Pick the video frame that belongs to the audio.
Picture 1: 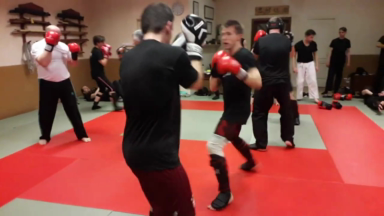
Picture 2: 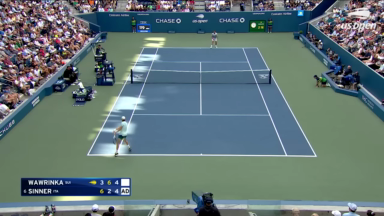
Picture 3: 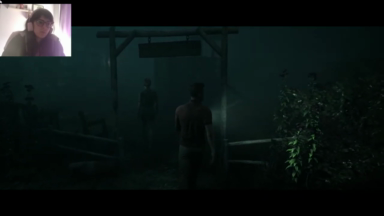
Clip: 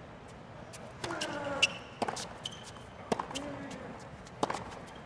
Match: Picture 2